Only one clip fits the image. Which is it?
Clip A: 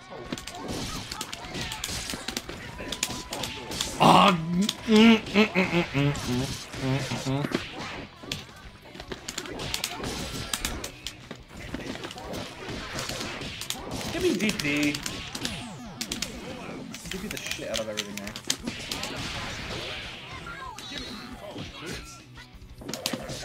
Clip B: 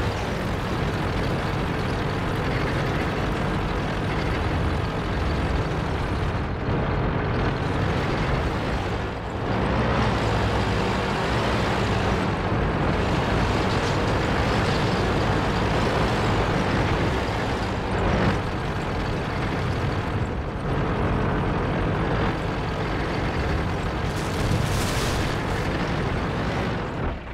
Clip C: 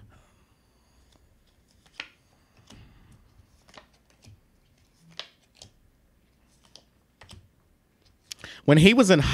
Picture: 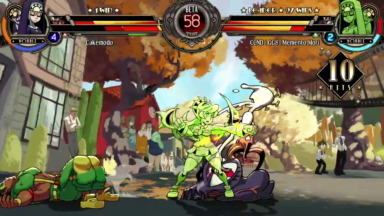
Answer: A